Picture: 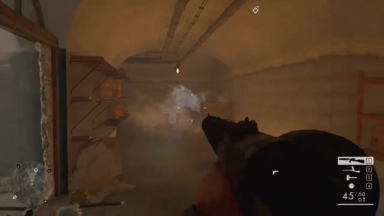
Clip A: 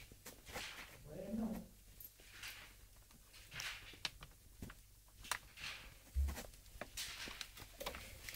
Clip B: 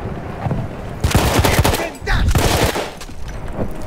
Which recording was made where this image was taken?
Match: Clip B